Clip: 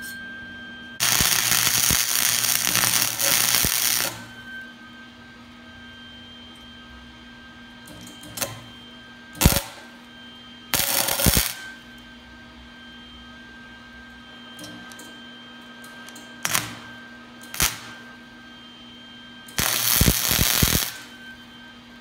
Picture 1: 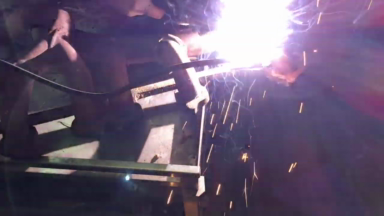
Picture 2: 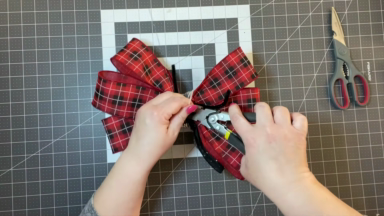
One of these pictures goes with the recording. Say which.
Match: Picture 1